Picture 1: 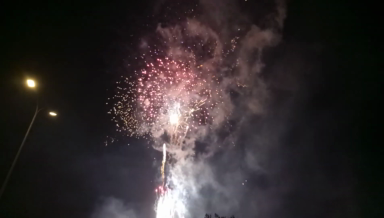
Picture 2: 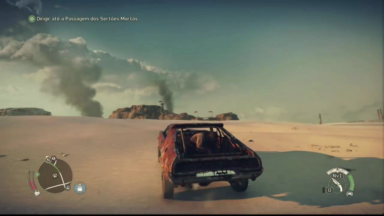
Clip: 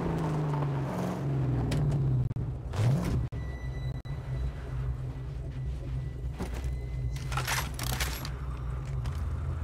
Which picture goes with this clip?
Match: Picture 2